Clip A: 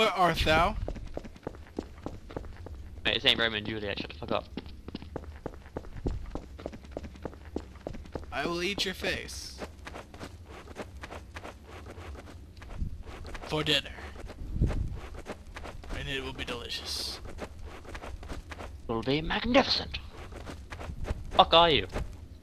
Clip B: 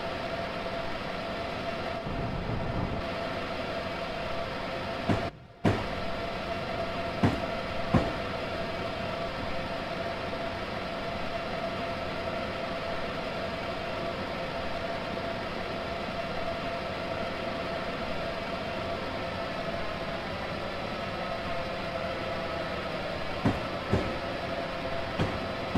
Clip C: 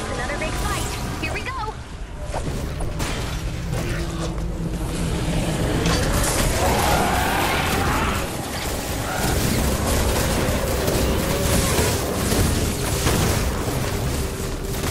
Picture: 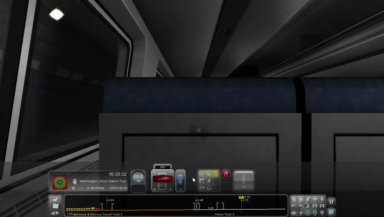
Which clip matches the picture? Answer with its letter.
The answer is B